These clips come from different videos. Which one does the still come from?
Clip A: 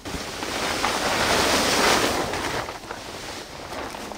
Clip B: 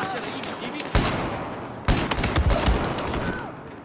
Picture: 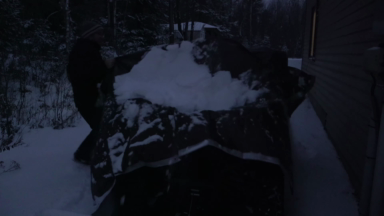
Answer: A